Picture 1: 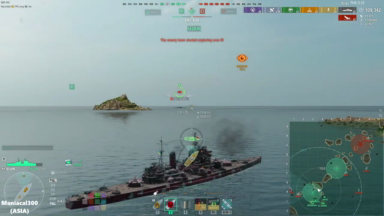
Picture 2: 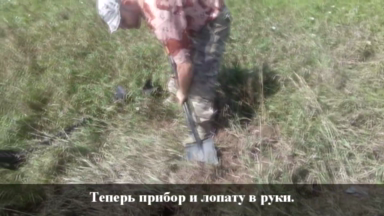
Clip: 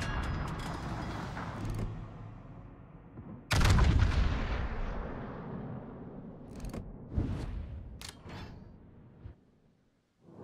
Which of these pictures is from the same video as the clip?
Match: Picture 1